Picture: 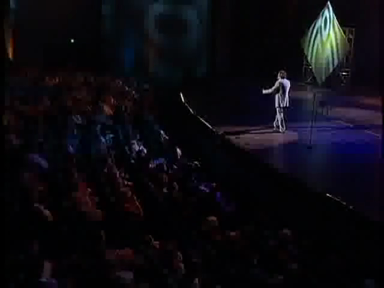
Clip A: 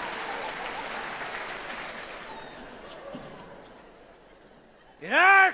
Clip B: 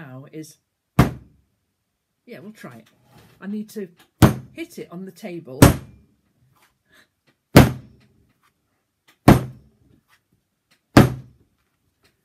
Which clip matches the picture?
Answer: A